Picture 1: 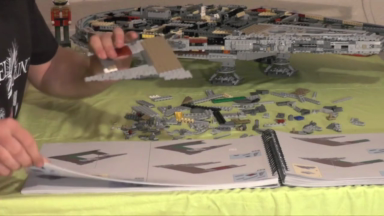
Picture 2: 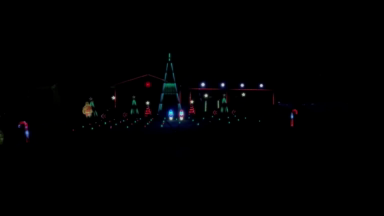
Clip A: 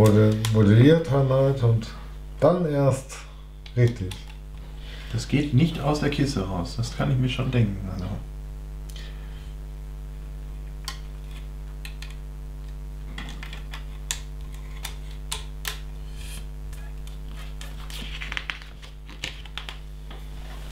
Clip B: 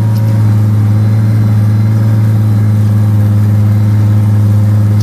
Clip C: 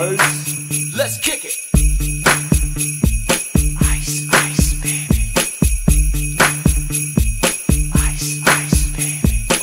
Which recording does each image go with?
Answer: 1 A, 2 C